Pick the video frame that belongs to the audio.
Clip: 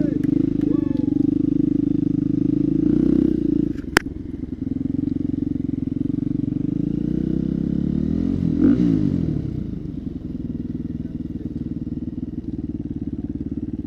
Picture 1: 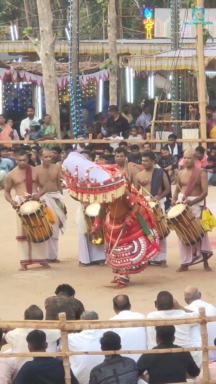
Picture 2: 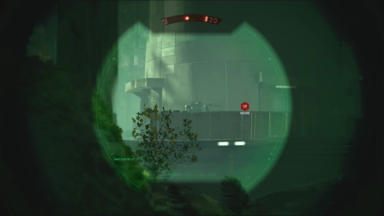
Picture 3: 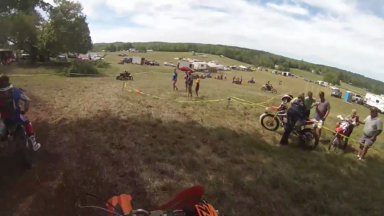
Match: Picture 3